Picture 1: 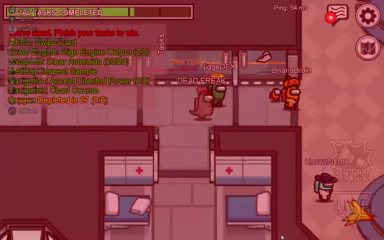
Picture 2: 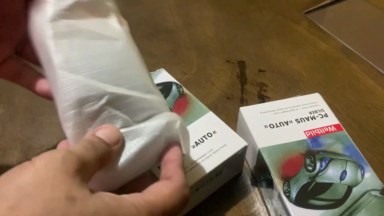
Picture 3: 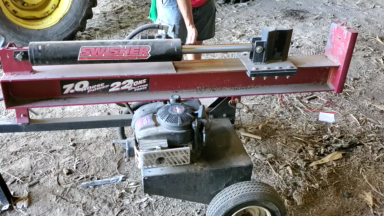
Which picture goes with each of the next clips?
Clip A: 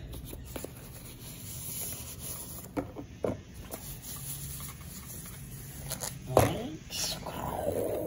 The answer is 2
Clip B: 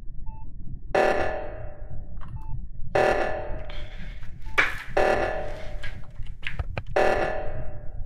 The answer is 1